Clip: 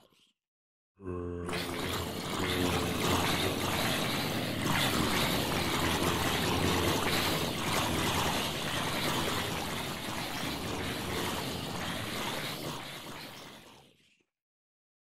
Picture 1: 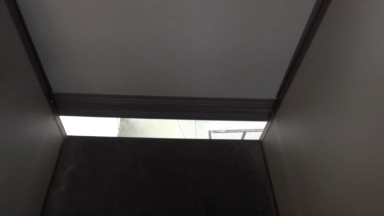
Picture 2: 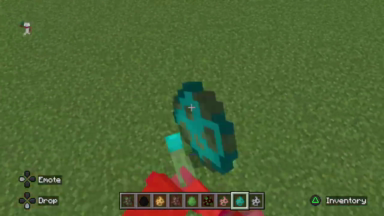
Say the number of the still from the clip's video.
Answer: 2